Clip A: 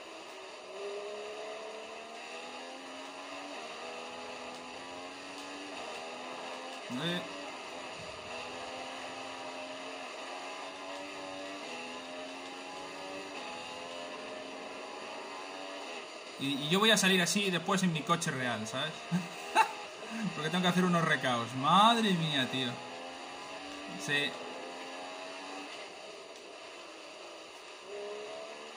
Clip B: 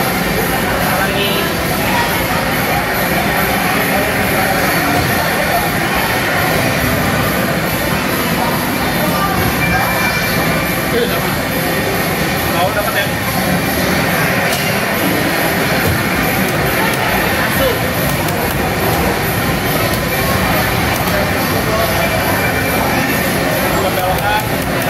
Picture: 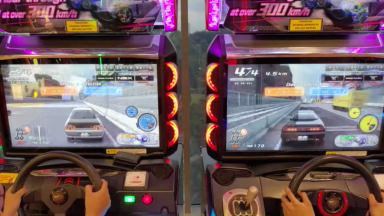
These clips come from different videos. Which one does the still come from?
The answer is B